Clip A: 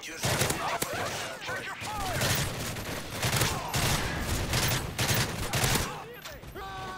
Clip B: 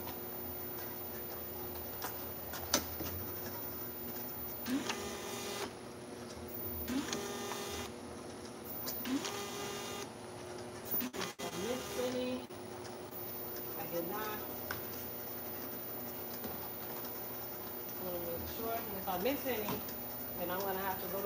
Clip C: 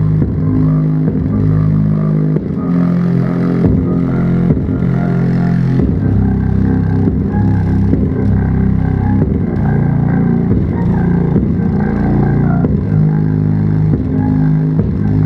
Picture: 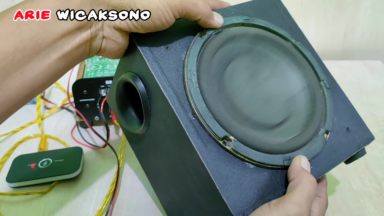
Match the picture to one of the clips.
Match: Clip C